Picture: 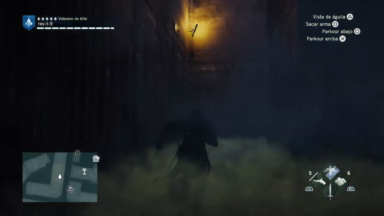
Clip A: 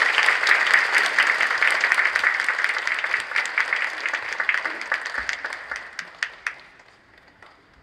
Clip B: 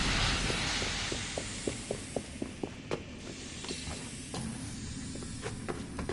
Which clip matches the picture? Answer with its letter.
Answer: B